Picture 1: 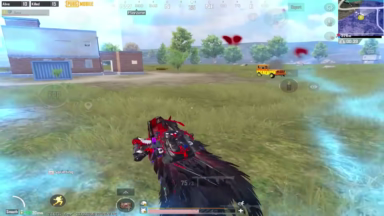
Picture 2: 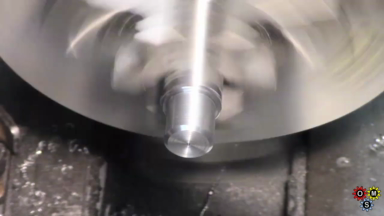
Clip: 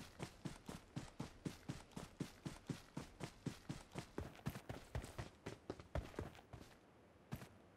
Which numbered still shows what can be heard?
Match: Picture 1